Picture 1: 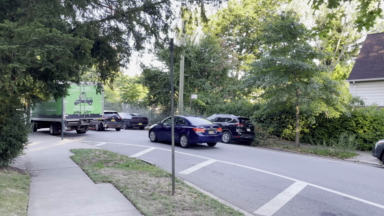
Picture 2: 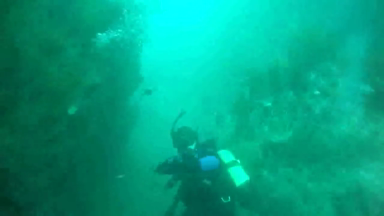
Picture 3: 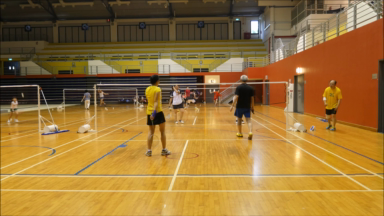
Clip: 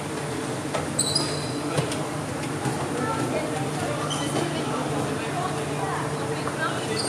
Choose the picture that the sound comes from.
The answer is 3